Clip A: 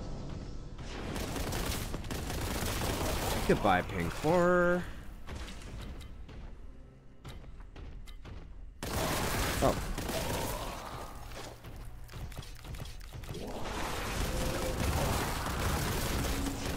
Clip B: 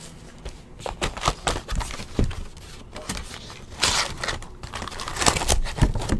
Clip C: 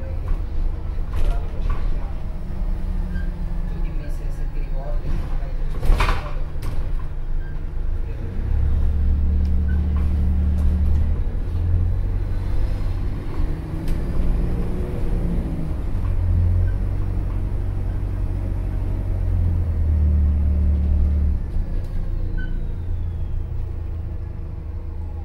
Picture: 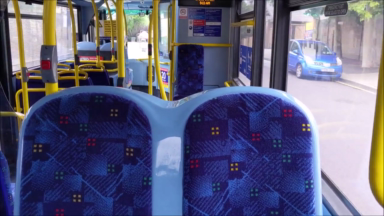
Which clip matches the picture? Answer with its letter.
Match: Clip C